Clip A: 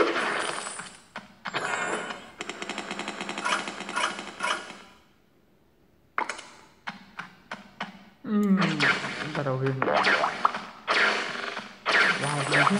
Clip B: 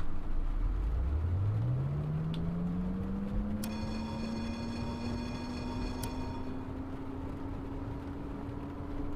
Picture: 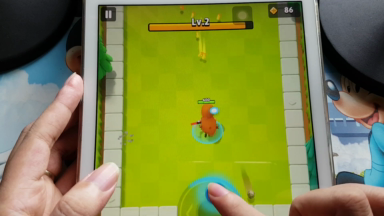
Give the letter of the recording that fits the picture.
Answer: A